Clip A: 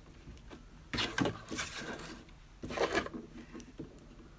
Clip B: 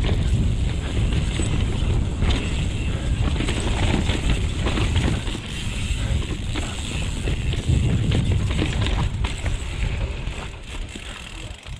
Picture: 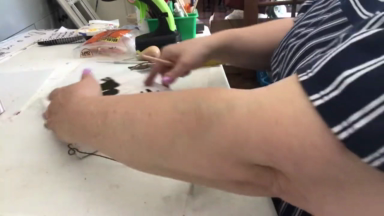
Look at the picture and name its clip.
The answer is A